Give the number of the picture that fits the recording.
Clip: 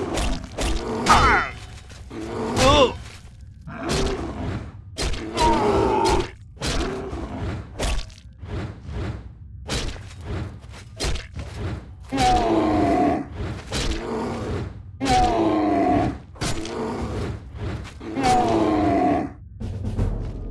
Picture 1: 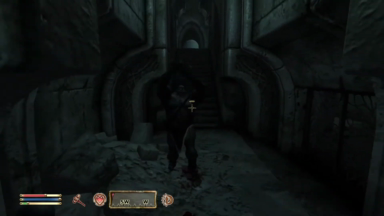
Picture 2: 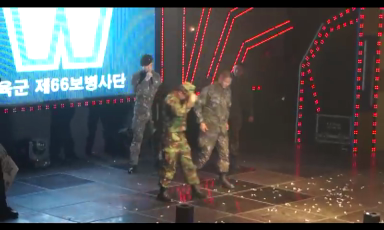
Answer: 1